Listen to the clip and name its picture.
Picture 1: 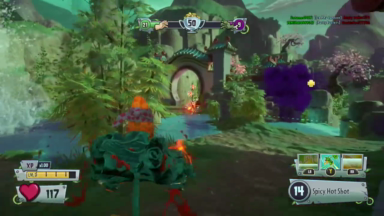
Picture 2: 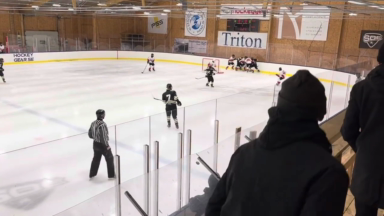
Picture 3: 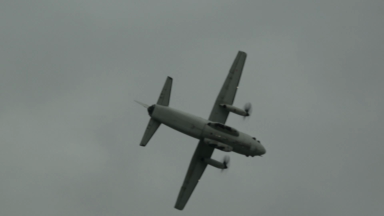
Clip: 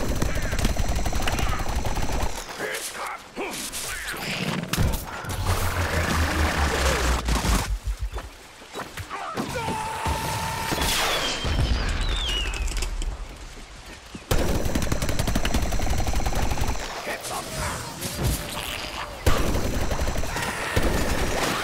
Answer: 1